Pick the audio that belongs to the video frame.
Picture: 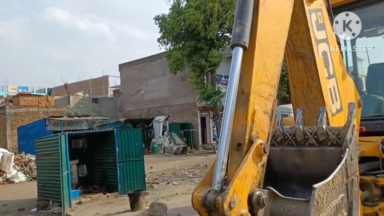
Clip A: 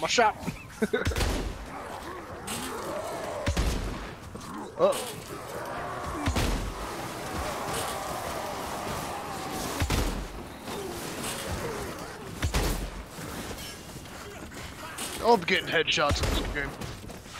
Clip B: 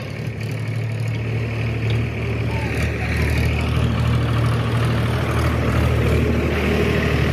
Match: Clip B